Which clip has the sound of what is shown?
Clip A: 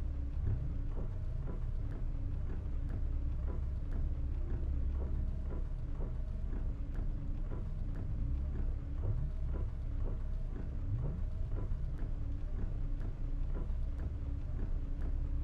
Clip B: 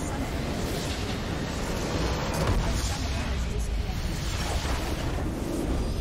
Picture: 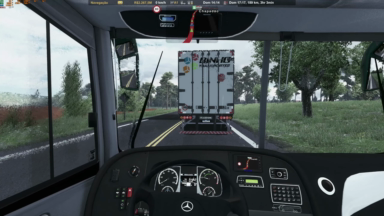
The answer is A